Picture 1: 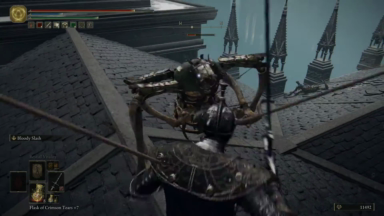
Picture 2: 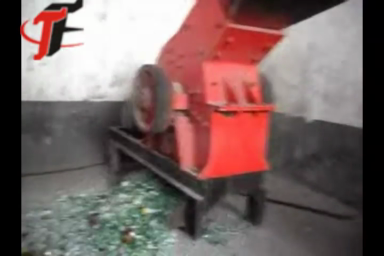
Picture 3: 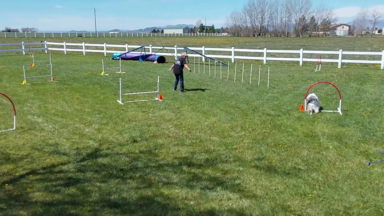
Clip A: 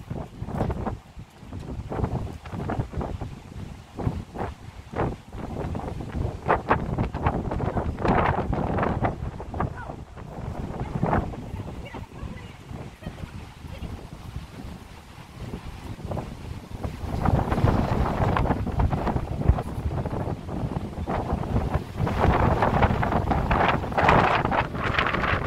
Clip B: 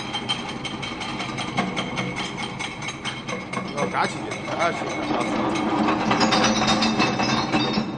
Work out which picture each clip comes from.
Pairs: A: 3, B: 2